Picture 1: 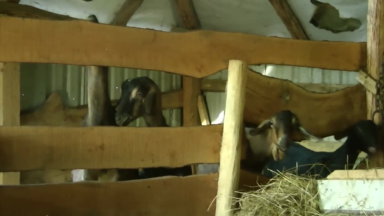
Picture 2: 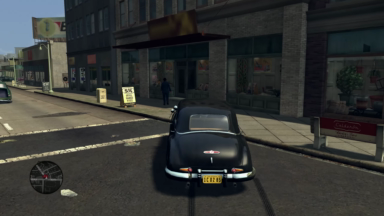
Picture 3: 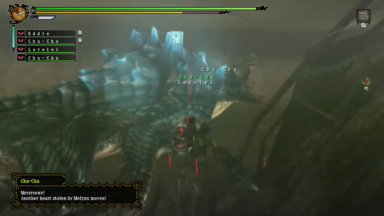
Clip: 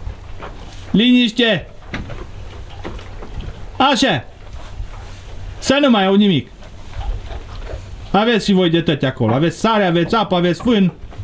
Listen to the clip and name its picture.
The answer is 1